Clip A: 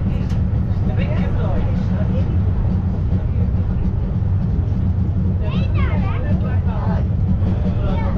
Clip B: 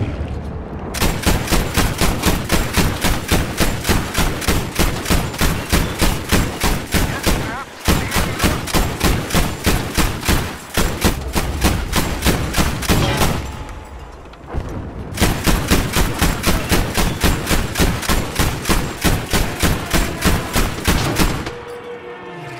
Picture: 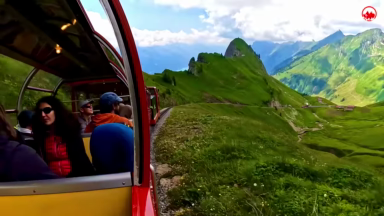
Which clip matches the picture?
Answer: A